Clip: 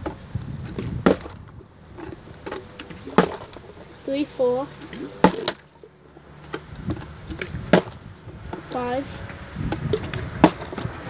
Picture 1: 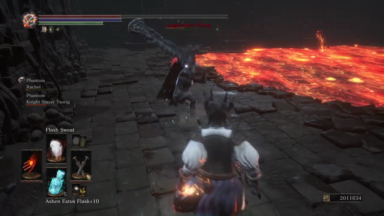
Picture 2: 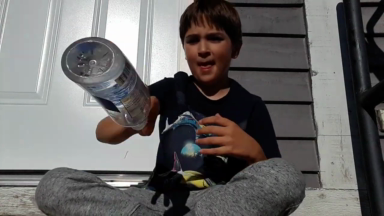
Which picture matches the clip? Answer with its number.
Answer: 2